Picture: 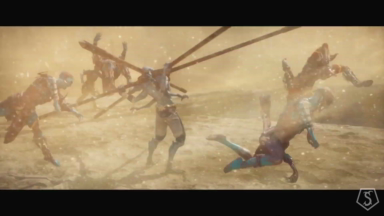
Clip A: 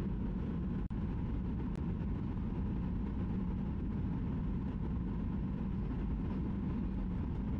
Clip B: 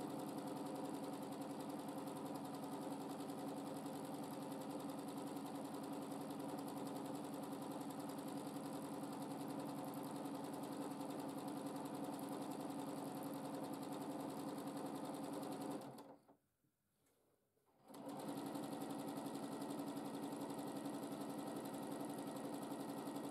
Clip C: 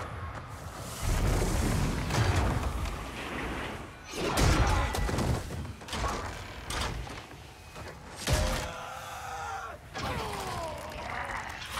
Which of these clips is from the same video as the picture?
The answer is C